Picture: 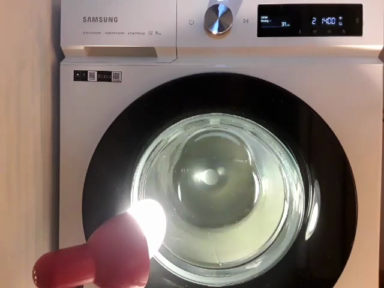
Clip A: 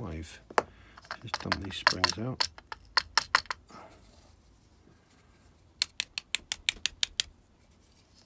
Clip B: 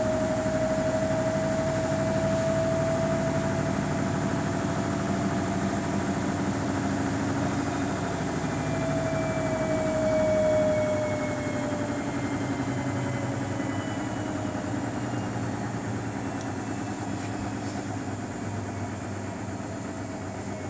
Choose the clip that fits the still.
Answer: B